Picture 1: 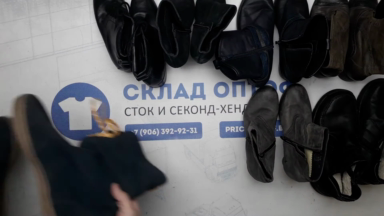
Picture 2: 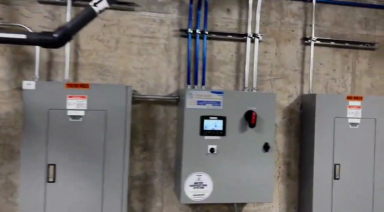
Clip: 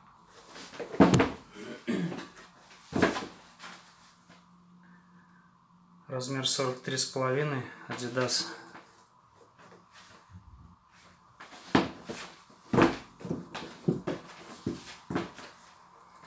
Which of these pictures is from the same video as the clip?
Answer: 1